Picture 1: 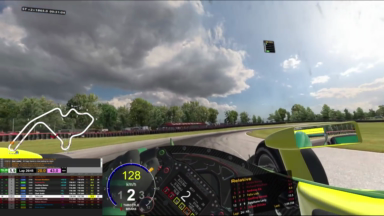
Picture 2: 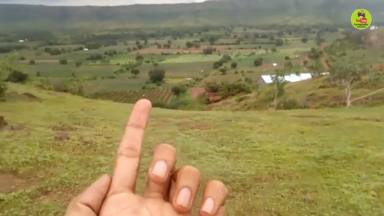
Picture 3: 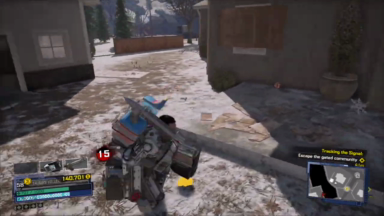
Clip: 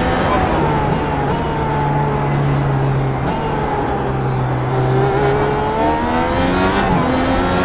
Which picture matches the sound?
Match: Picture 1